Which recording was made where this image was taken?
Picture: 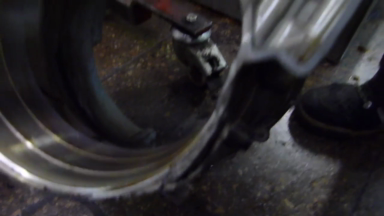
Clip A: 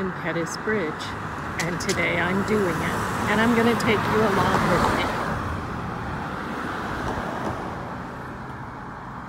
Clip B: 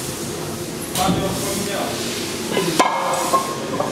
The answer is B